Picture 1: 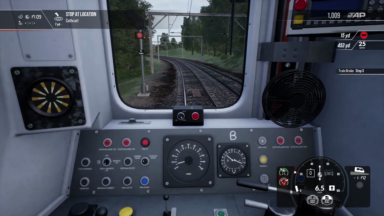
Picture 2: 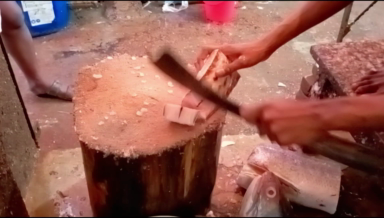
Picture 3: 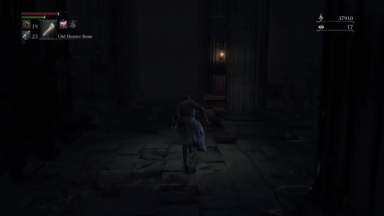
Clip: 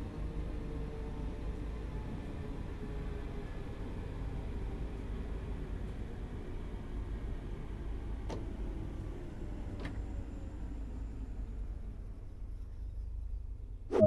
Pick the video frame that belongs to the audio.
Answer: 1